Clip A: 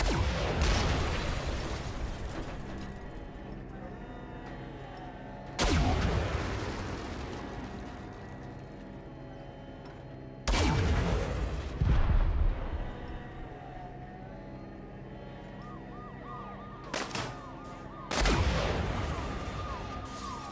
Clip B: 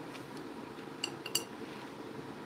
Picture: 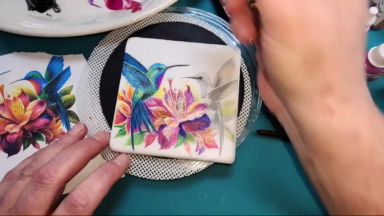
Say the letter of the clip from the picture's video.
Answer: B